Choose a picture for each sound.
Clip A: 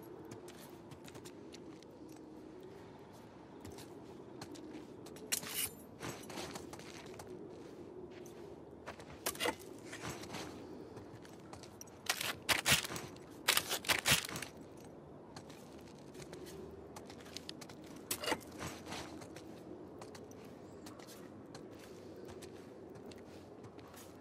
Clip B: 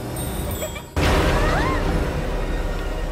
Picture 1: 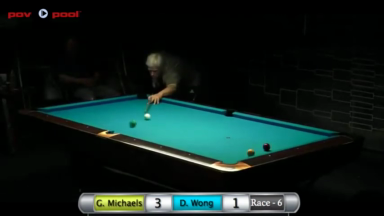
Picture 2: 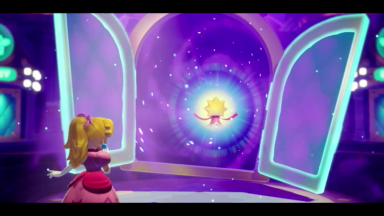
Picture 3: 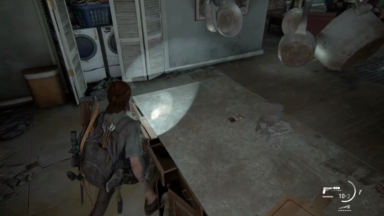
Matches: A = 3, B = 2